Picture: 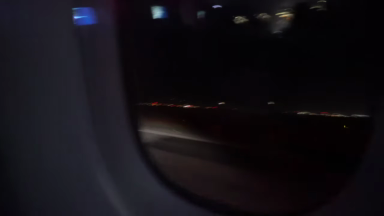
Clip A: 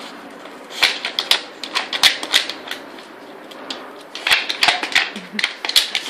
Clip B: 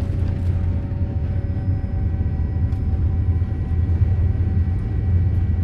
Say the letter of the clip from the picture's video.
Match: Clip B